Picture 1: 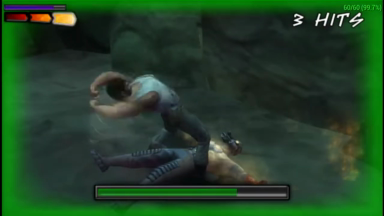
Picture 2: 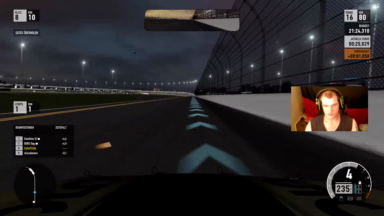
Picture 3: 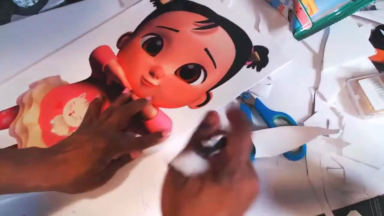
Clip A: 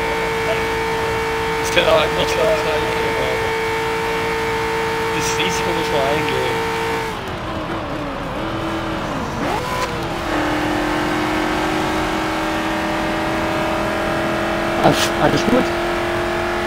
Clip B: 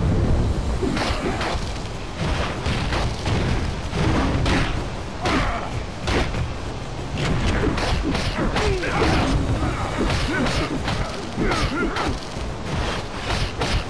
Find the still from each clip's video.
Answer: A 2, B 1